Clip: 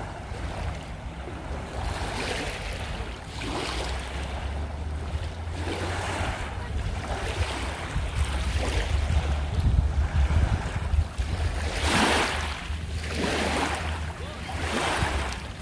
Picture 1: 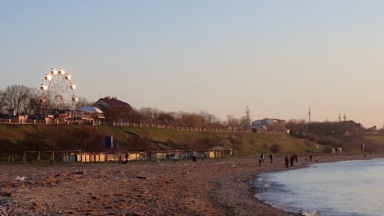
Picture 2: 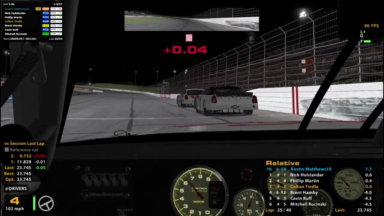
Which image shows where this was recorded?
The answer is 1